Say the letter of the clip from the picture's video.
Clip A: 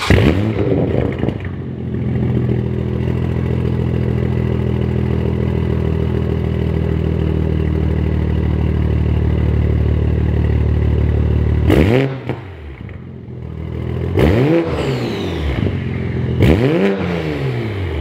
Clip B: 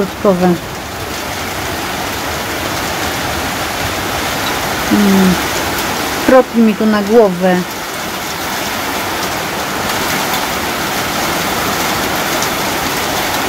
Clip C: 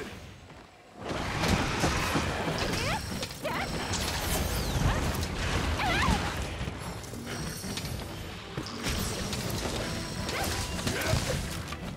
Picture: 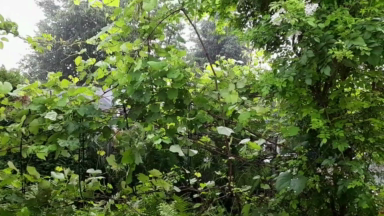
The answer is B